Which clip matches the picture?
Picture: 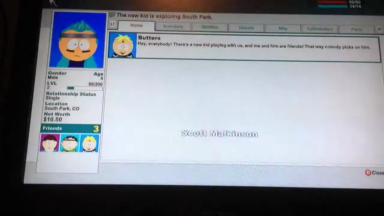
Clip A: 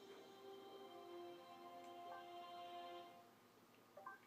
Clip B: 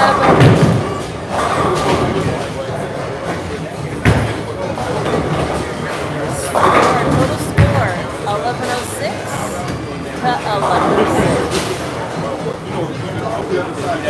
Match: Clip A